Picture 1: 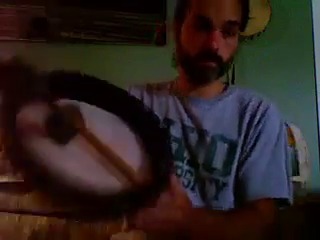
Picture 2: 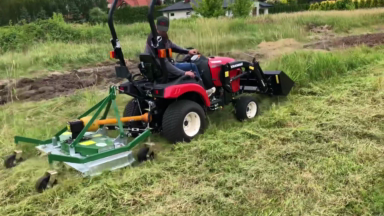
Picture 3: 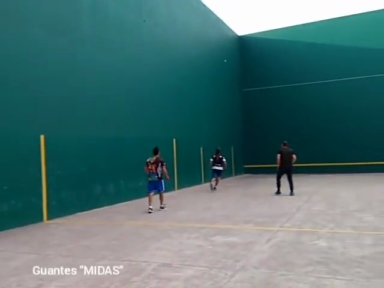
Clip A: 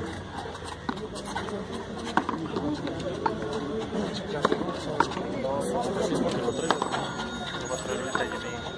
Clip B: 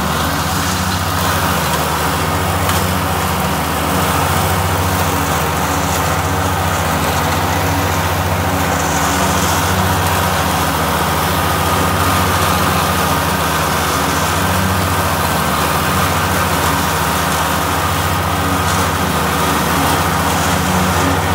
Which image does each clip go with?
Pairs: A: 3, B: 2